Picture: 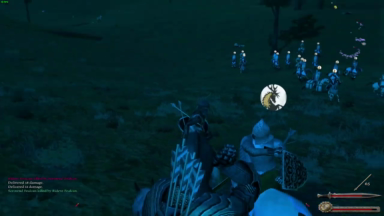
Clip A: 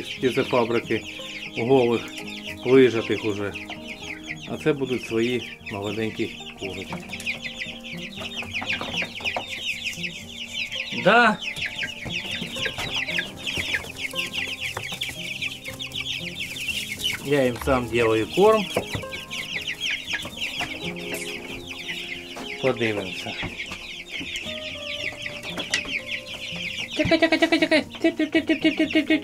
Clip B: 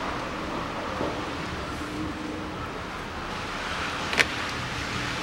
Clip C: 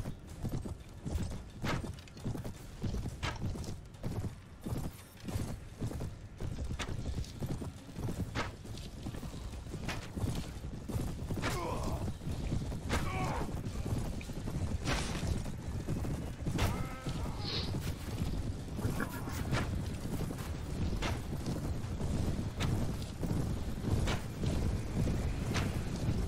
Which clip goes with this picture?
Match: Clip C